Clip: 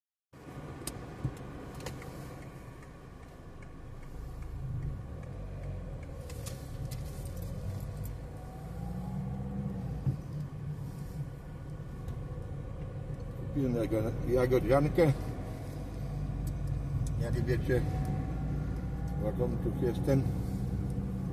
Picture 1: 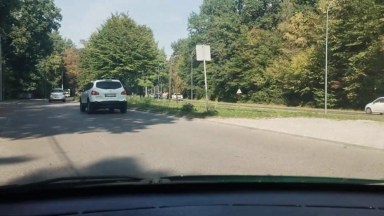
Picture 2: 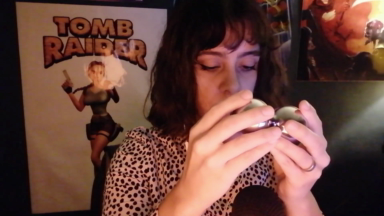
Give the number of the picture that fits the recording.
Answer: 1